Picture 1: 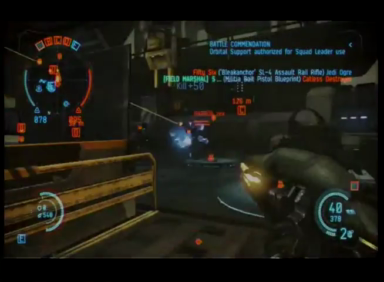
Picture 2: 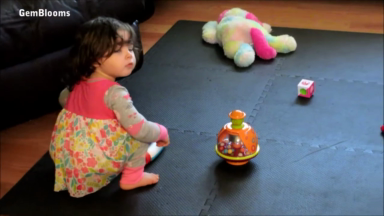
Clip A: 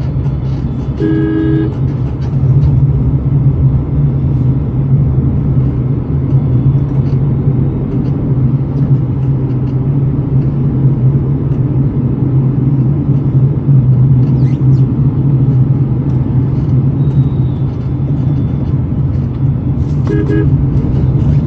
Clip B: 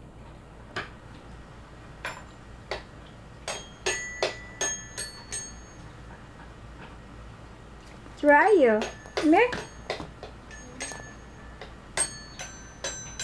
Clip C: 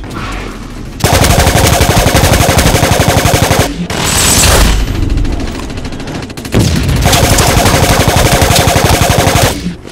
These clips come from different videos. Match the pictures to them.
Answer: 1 C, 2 B